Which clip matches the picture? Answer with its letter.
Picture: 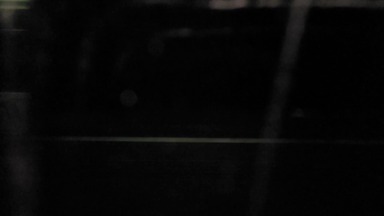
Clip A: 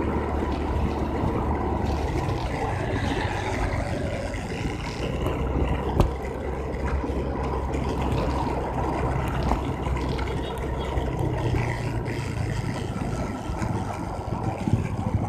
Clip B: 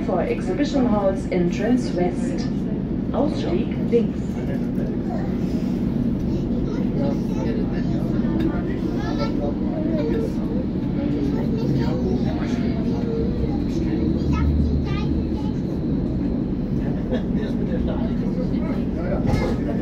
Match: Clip B